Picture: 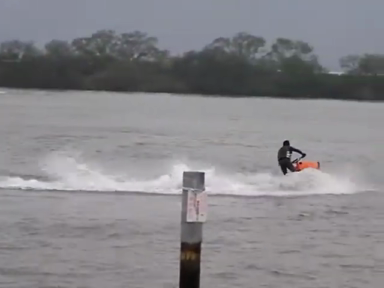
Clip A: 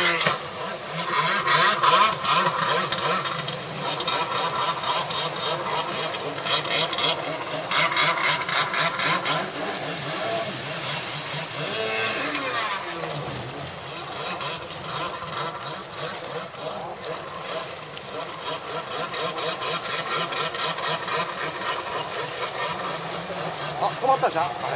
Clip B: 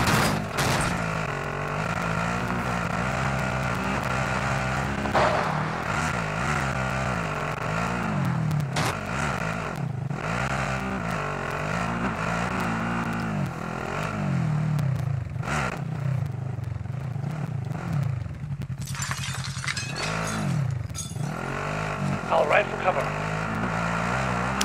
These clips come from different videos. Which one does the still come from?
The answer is A